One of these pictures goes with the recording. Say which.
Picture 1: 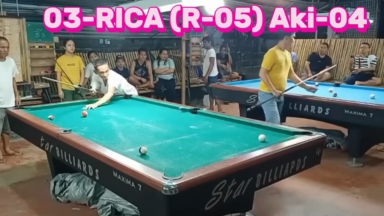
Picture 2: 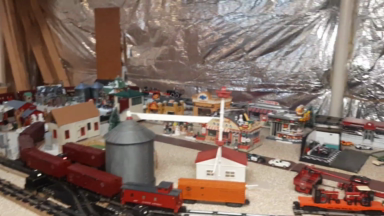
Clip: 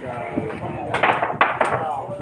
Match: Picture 1